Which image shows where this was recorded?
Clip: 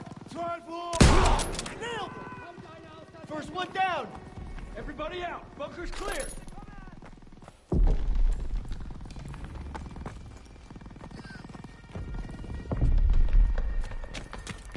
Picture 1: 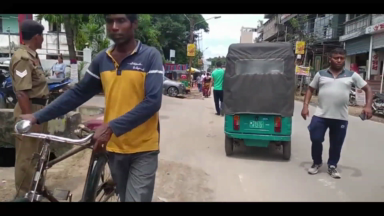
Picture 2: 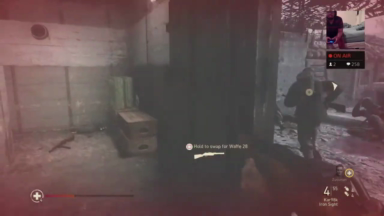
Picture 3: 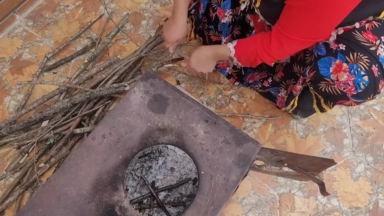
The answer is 2